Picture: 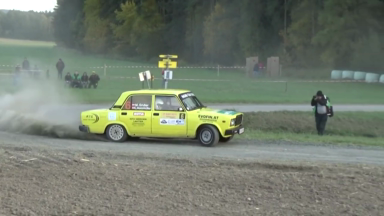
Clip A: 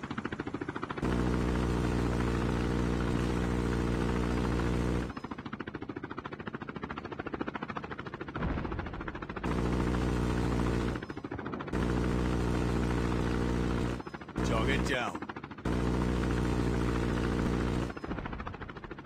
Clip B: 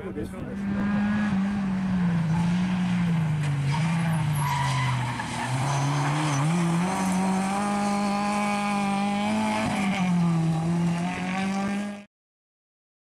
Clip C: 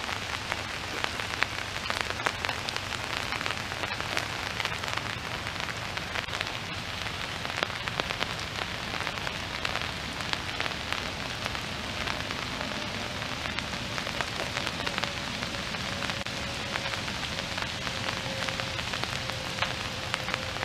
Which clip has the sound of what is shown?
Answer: B